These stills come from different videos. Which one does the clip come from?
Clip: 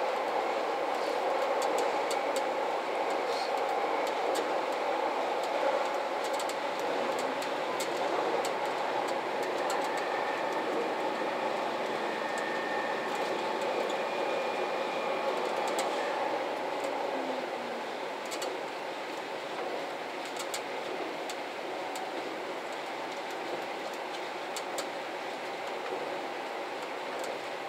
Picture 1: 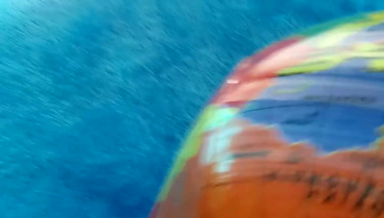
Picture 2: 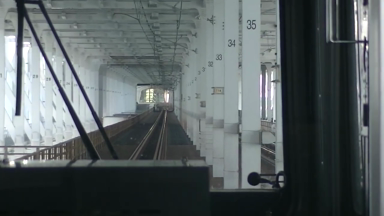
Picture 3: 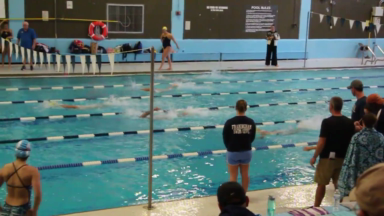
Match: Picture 2